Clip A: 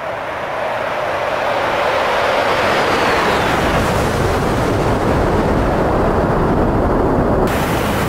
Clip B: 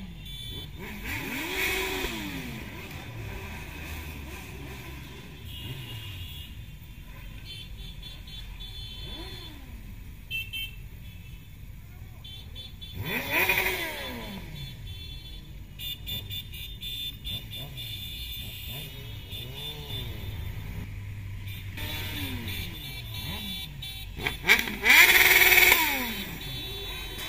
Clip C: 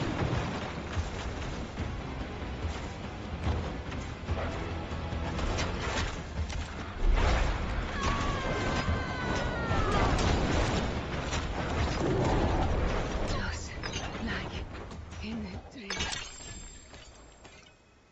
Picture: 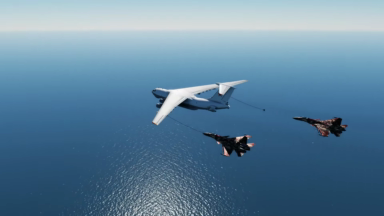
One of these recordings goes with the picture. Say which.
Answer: A